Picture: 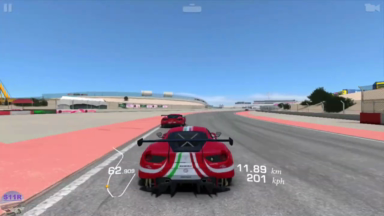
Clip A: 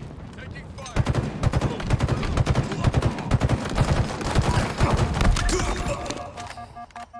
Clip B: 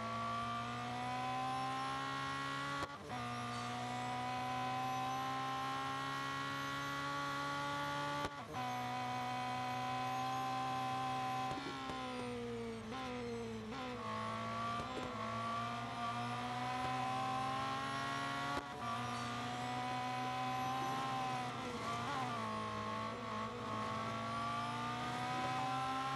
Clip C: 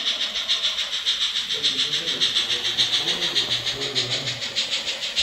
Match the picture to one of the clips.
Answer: B